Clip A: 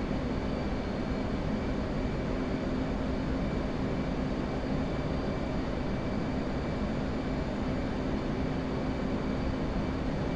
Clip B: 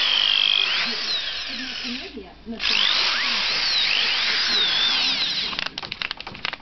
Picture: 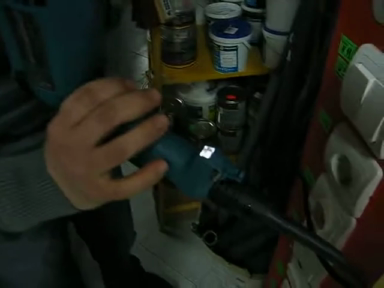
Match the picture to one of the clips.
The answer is B